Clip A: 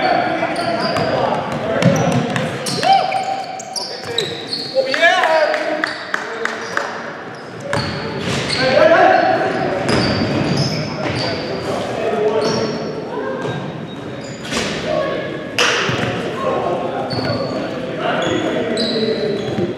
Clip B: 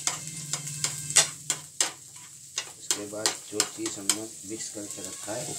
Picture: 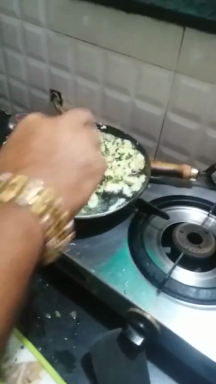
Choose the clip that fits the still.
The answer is B